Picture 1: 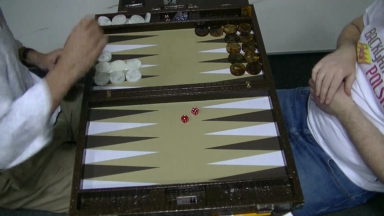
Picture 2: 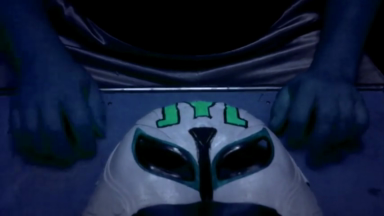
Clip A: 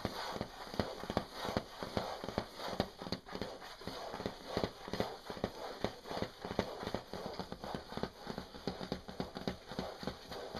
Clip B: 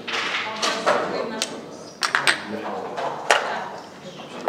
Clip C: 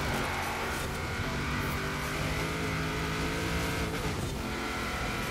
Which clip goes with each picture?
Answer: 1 B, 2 A